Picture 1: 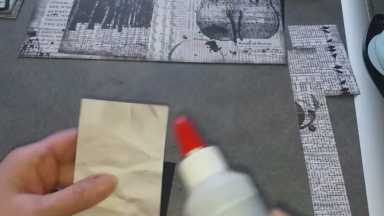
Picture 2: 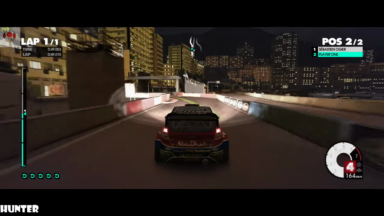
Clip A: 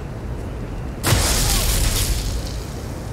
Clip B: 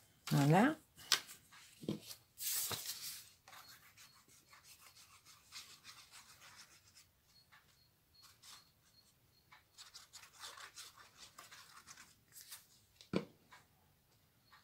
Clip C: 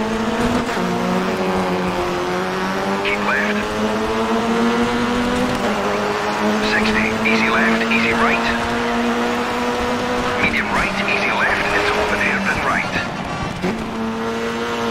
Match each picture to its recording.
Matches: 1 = B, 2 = C